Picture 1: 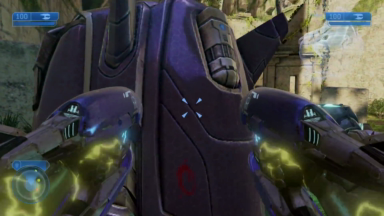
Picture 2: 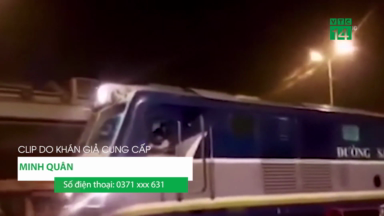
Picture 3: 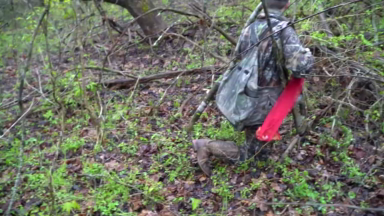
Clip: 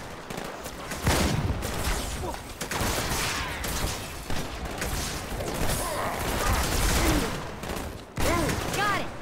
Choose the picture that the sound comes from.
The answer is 1